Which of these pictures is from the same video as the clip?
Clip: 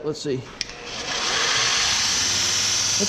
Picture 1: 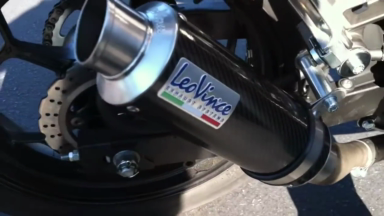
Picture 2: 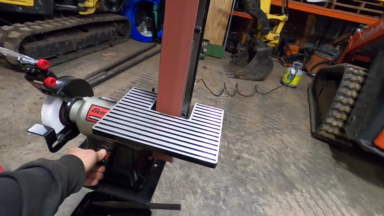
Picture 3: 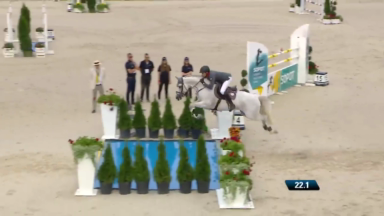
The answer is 2